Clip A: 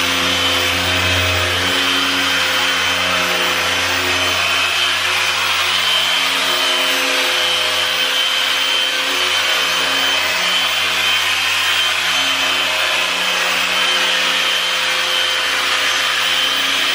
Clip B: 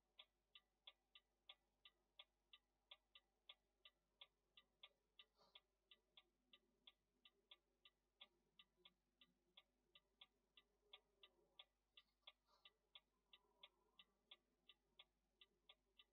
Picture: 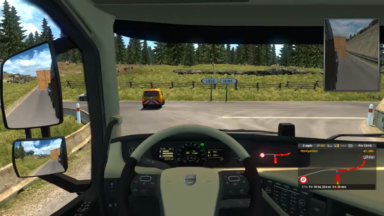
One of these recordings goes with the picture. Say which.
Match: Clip B